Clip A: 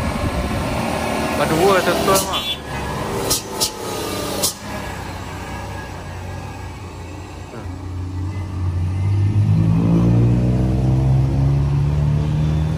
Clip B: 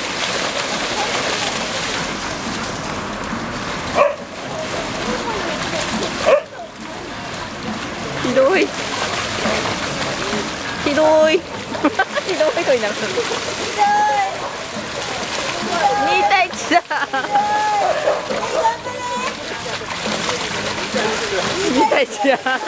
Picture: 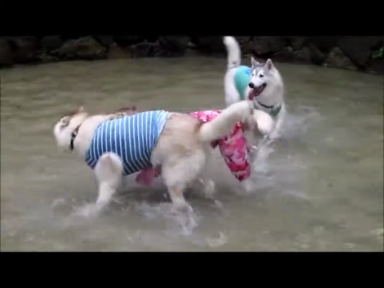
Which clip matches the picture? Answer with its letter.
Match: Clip B